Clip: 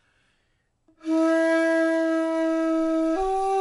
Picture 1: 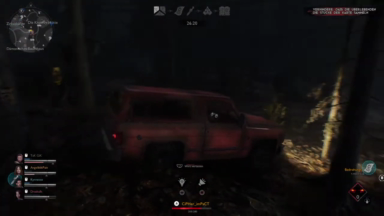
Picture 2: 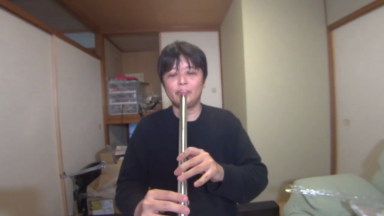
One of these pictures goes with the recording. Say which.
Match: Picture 2